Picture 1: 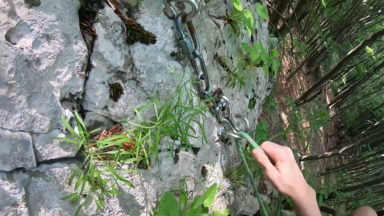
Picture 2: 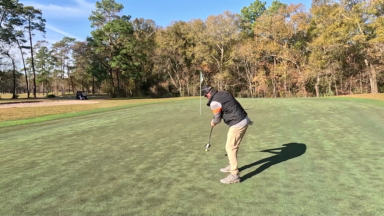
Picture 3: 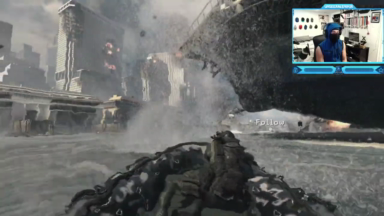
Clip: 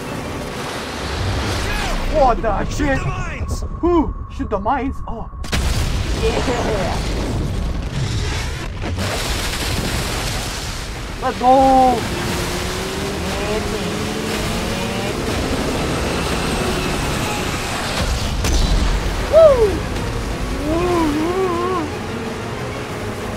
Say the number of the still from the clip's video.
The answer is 3